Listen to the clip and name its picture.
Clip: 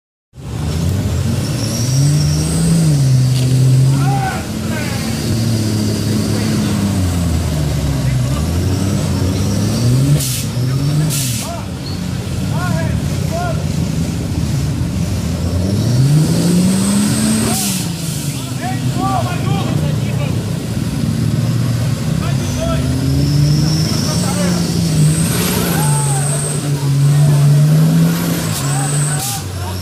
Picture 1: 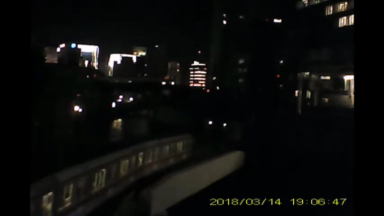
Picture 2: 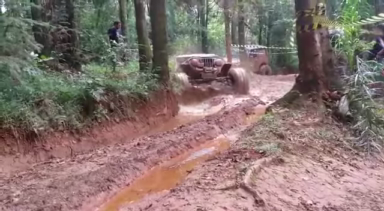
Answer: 2